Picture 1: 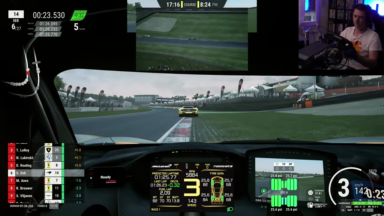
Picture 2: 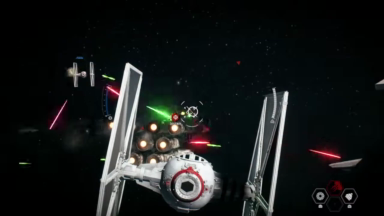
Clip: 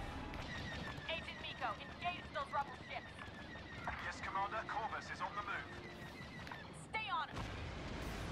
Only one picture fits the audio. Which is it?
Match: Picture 2